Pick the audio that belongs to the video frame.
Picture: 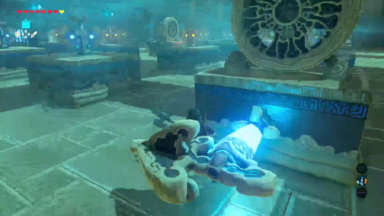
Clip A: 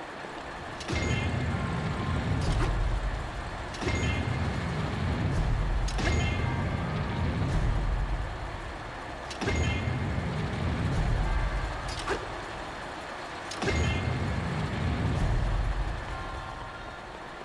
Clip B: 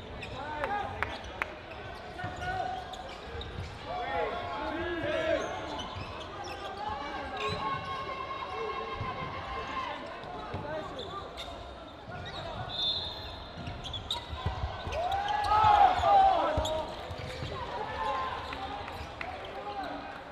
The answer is A